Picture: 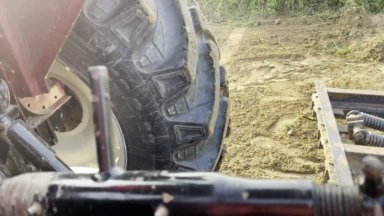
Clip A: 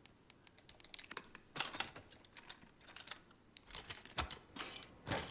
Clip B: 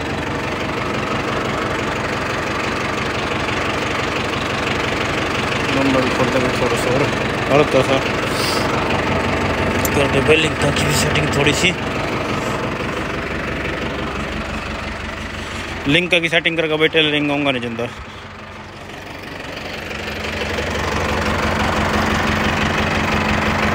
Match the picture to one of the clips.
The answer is B